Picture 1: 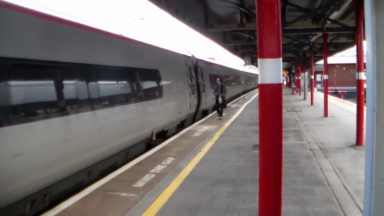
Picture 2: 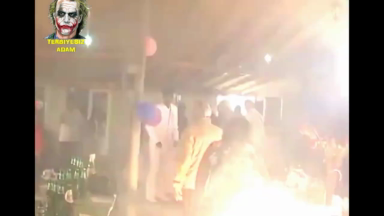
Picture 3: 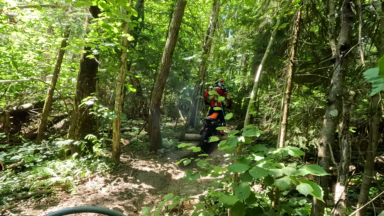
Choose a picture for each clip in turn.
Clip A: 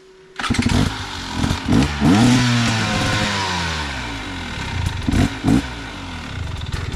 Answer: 3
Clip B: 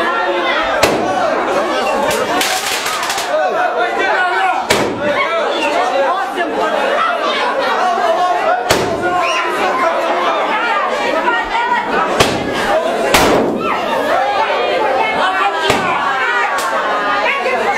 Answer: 2